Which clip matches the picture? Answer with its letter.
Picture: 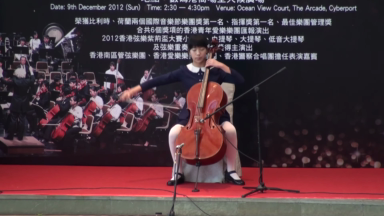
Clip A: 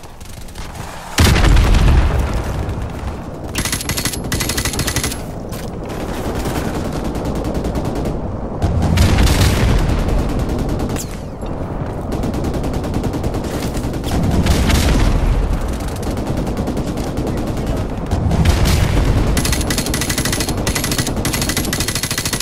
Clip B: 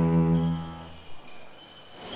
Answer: B